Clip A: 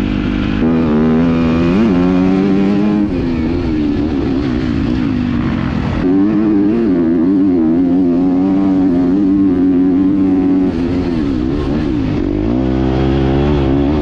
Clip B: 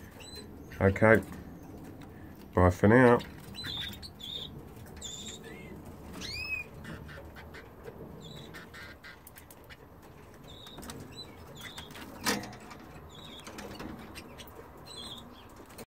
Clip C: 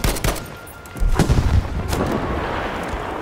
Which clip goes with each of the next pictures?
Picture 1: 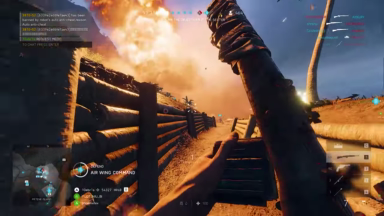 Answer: C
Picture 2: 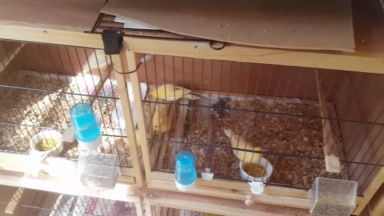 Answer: B